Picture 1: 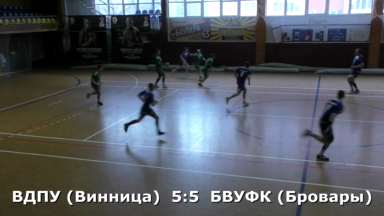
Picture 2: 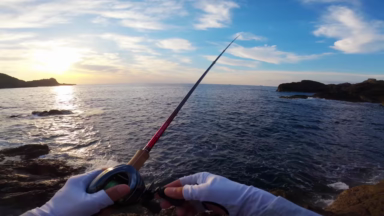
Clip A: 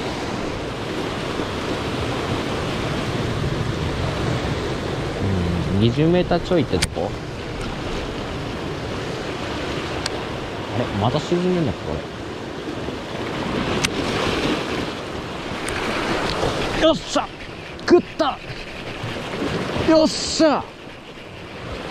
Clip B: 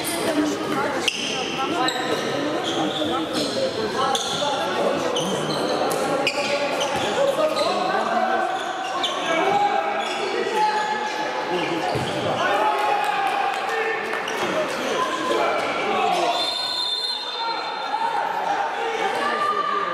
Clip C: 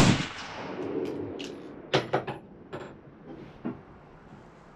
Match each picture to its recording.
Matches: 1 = B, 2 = A